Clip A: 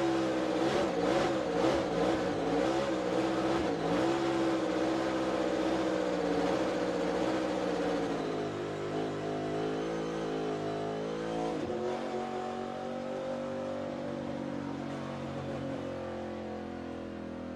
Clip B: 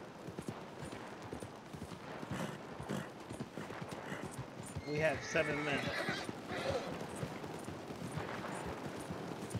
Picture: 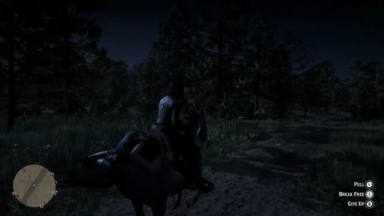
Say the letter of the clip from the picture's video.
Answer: B